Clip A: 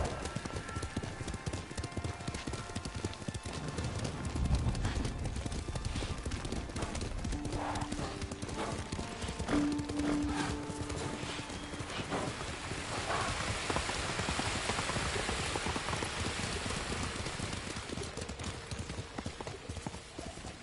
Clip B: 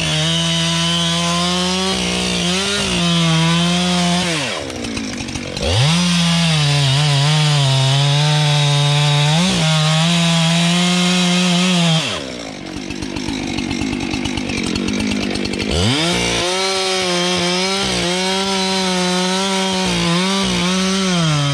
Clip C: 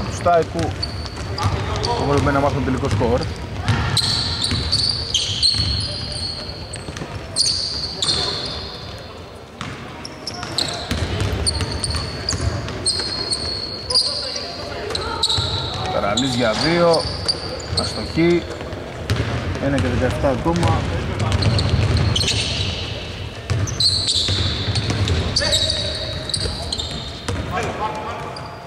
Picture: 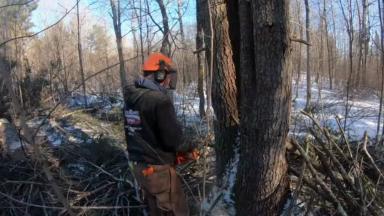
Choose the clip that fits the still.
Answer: B